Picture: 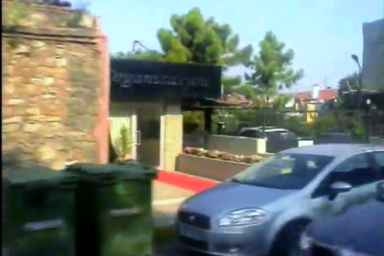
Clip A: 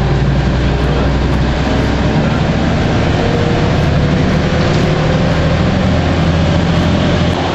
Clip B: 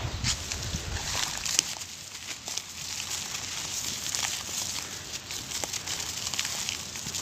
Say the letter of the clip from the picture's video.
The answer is A